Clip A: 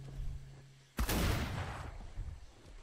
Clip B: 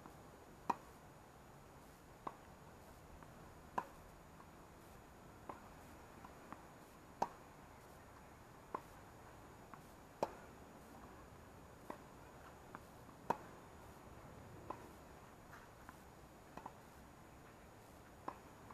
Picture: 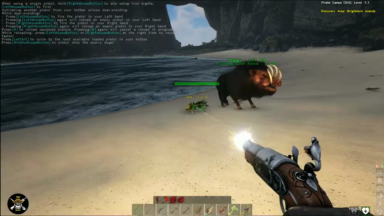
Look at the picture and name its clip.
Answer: A